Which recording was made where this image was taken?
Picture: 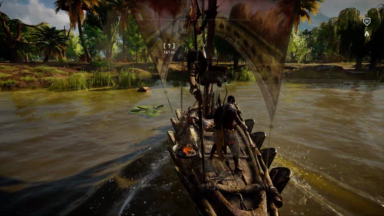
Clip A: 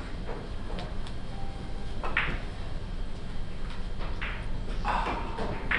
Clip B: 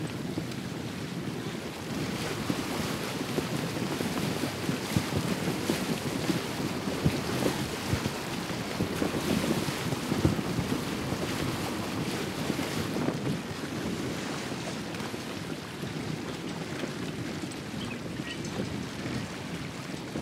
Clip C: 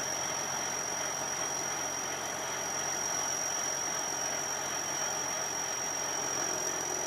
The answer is B